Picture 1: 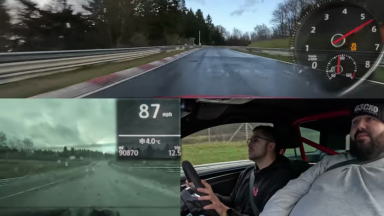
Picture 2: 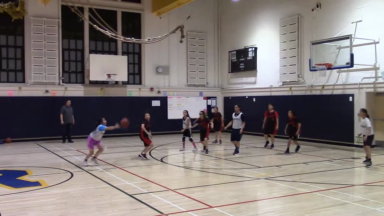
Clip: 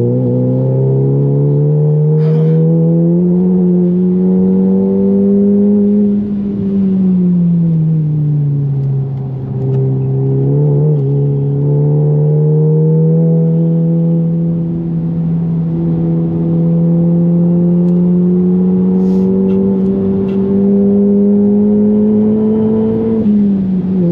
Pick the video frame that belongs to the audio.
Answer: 1